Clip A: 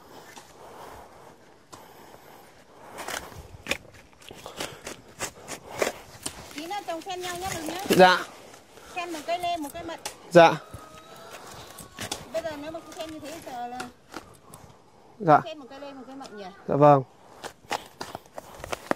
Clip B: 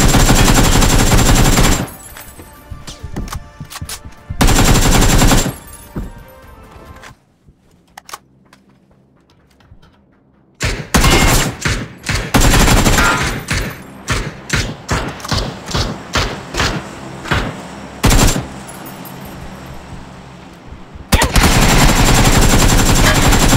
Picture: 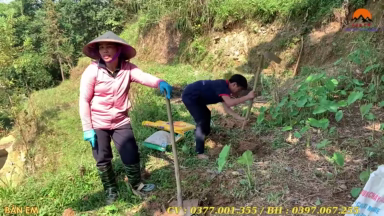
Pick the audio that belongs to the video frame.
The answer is A